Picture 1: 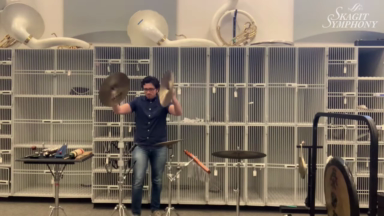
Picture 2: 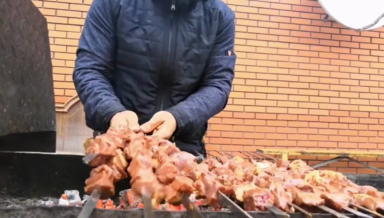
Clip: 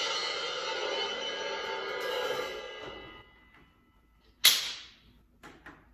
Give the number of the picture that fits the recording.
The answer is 1